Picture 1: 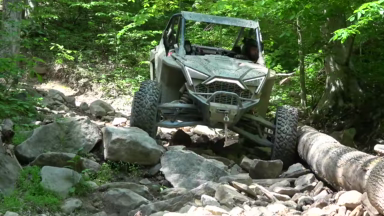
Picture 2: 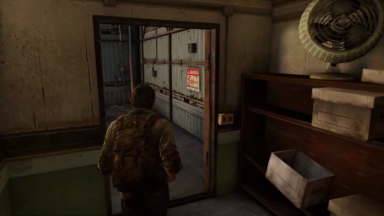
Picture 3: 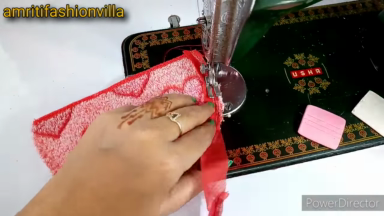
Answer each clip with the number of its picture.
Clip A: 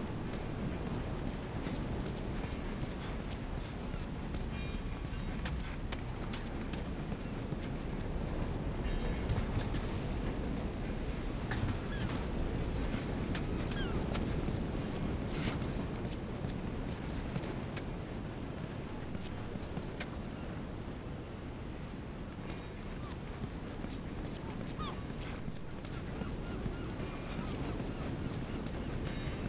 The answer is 2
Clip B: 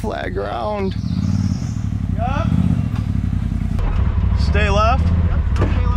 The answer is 1